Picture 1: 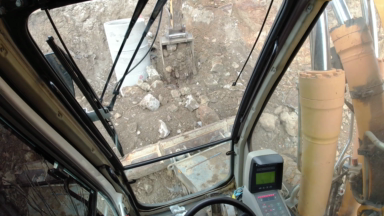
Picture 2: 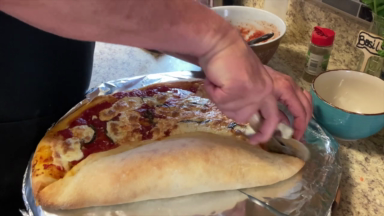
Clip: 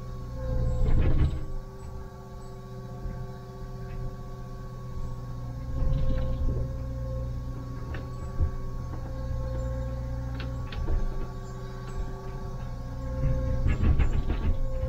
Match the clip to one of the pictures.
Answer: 1